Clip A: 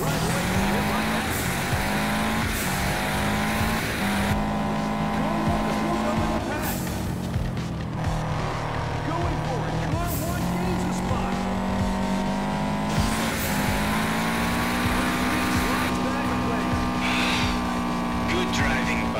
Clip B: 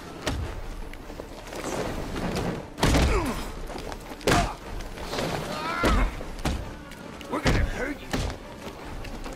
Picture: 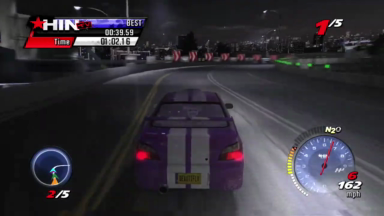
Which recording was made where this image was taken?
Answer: A